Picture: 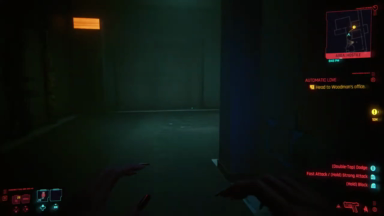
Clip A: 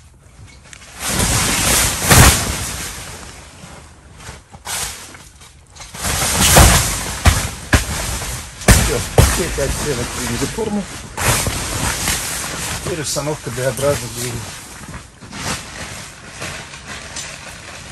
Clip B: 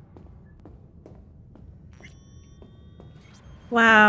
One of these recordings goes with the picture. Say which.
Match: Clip B